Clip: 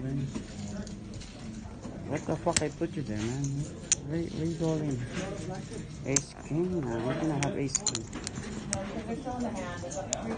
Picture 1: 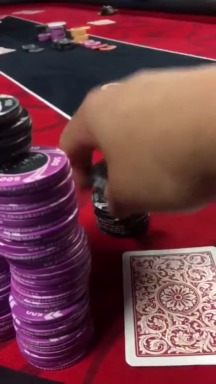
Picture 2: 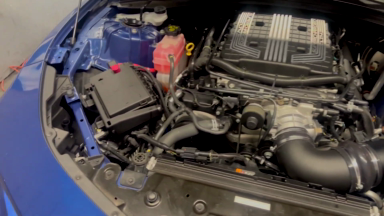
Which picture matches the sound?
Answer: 1